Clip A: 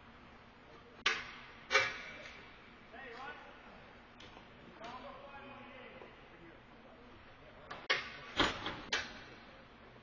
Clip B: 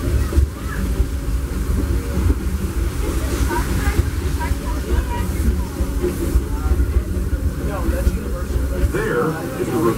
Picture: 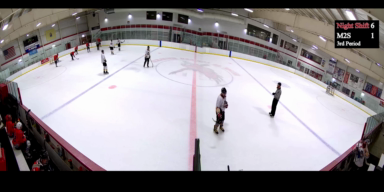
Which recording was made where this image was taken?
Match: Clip A